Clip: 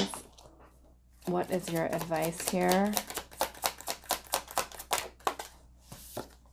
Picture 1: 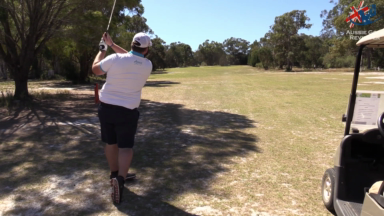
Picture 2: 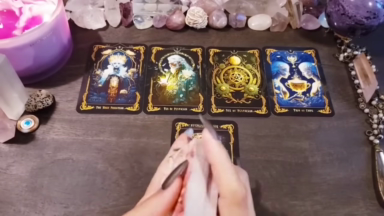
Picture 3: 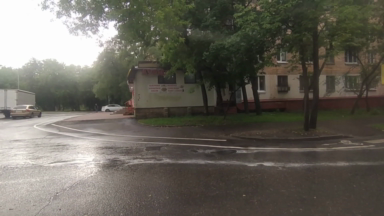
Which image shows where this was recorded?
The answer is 2